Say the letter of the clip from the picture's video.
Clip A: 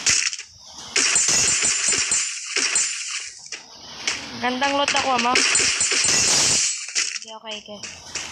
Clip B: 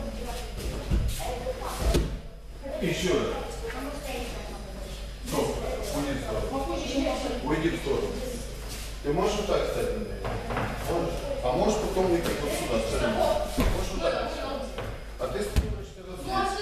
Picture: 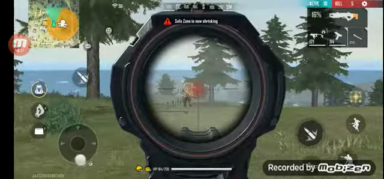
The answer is A